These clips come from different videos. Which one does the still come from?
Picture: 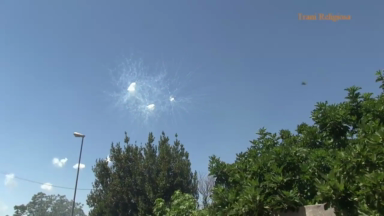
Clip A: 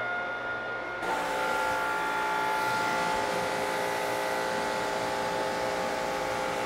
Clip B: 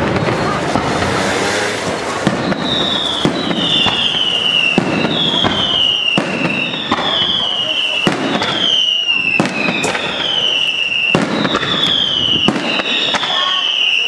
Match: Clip B